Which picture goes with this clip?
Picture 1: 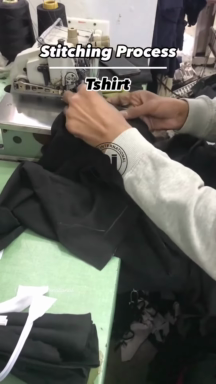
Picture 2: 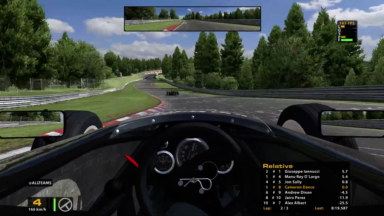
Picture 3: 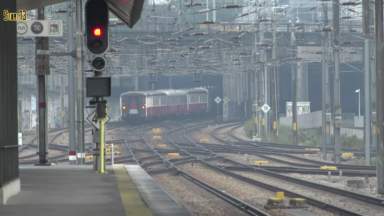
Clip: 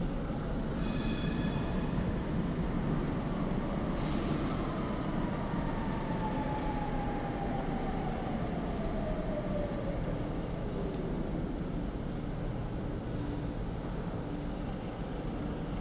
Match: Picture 3